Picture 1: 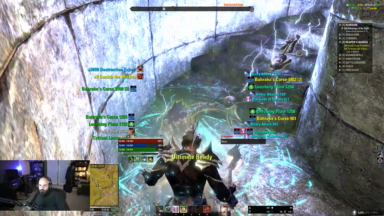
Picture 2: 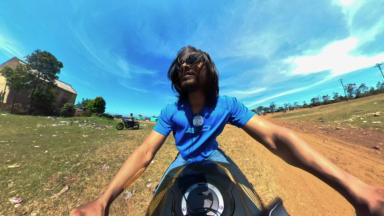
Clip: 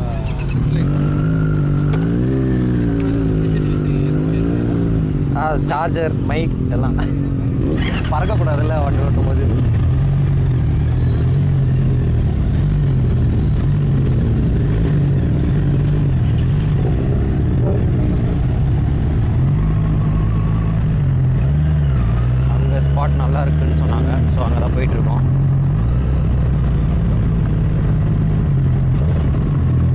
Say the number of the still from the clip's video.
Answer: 2